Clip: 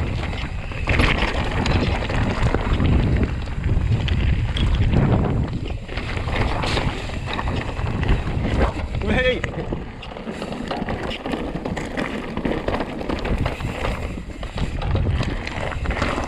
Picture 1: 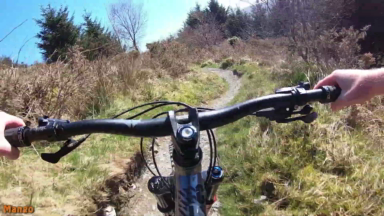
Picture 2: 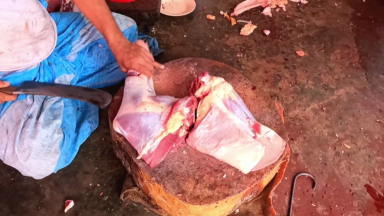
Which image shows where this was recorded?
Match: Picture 1